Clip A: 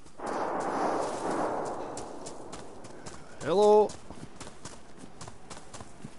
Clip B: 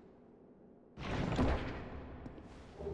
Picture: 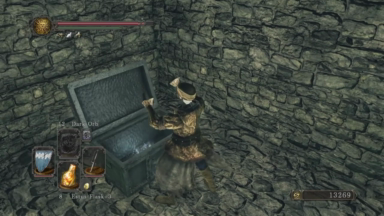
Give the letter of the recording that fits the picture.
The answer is B